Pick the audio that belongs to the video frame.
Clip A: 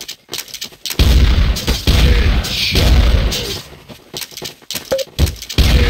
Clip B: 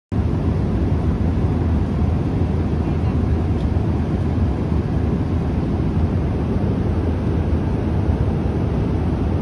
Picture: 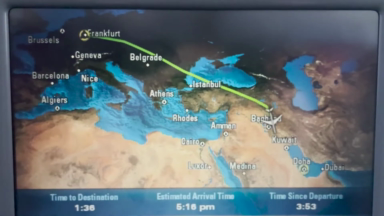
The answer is B